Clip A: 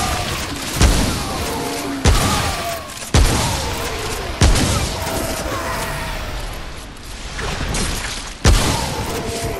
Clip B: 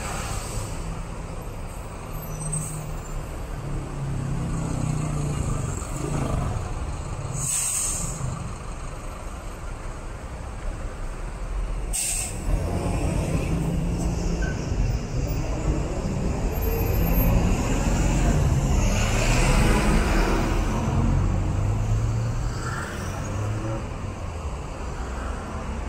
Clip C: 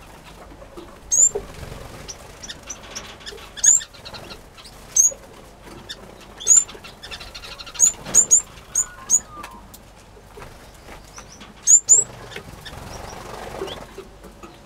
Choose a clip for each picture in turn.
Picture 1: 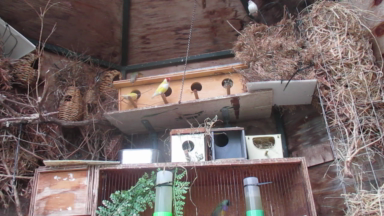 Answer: C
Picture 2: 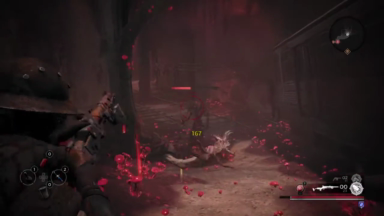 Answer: A